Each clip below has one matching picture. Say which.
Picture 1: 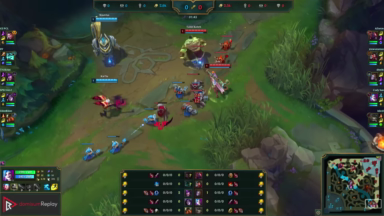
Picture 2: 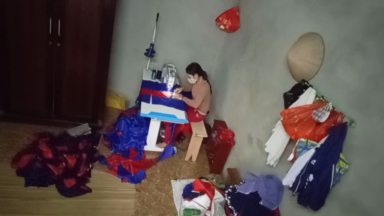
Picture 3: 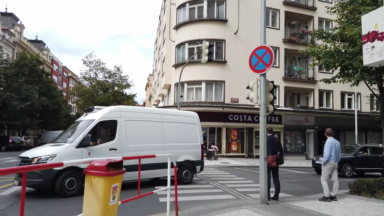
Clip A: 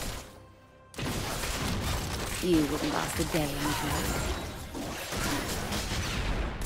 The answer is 1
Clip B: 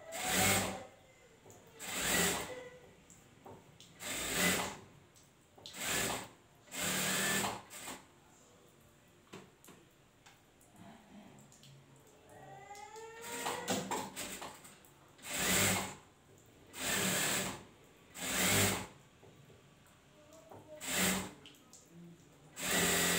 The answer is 2